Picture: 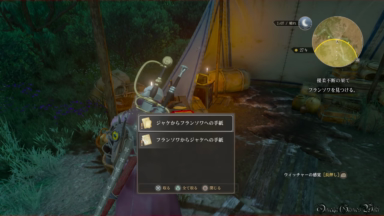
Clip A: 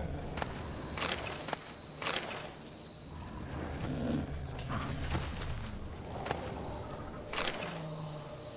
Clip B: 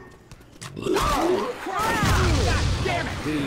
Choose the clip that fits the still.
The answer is A